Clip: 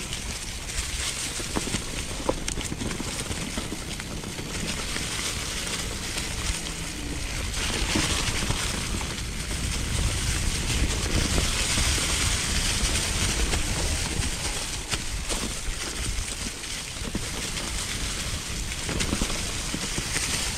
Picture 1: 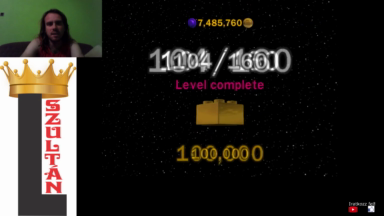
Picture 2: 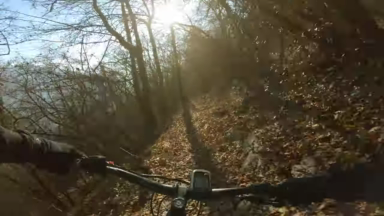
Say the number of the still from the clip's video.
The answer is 2